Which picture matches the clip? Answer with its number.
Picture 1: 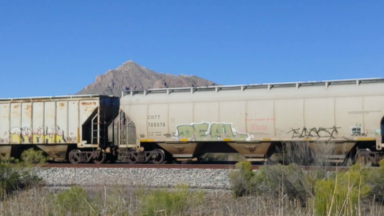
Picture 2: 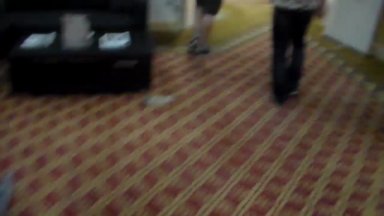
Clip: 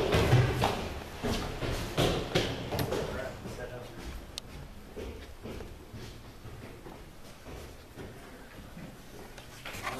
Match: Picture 2